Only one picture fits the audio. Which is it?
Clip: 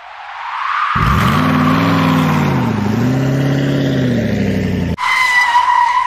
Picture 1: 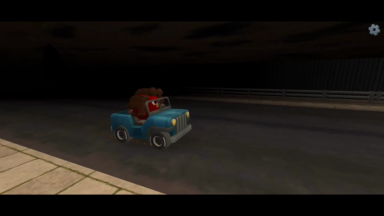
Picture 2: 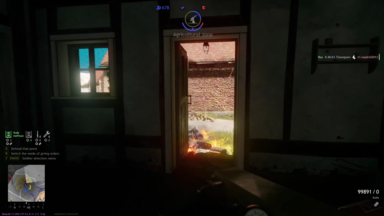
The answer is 1